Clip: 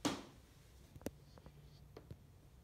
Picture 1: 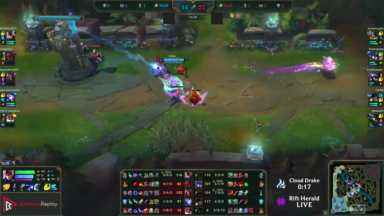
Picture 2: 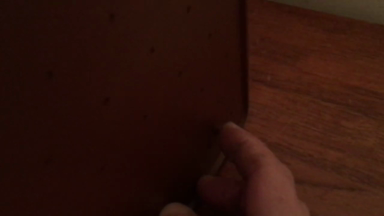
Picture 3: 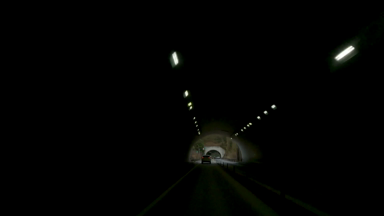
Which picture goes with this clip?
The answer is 2